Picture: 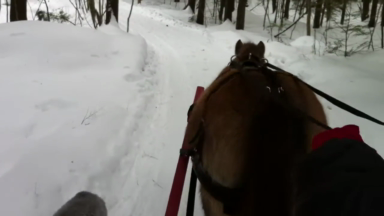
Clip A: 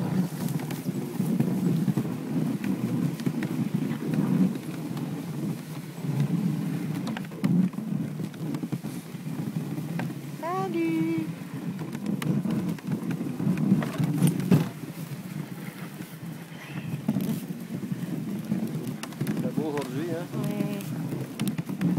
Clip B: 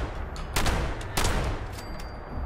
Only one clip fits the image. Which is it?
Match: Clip A